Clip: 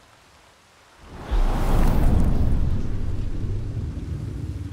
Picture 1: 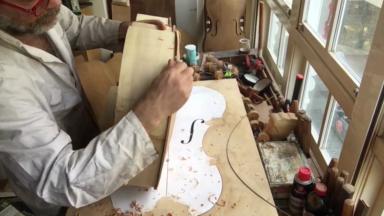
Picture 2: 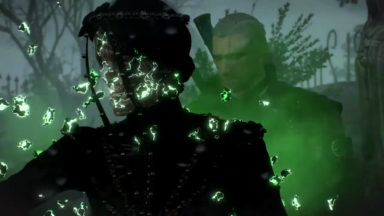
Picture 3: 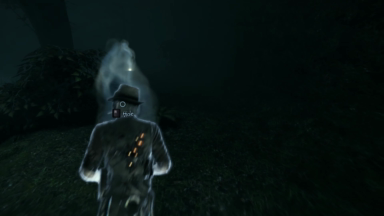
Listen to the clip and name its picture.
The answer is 2